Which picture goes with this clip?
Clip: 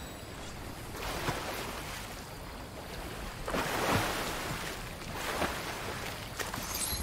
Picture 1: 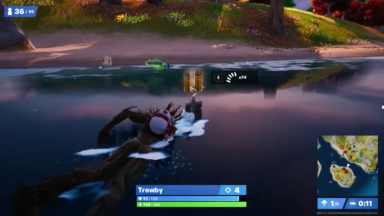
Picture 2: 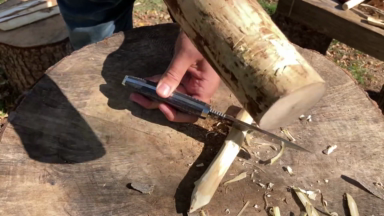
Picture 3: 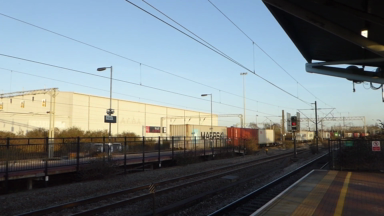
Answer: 1